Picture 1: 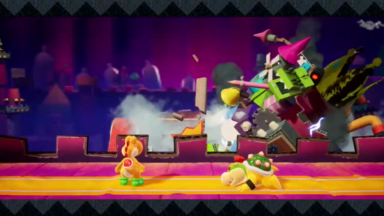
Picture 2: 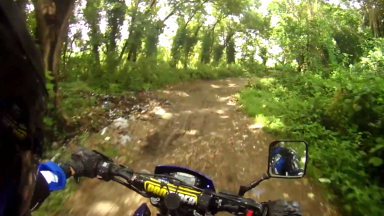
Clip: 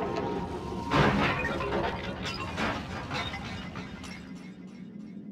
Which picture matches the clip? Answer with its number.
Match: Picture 1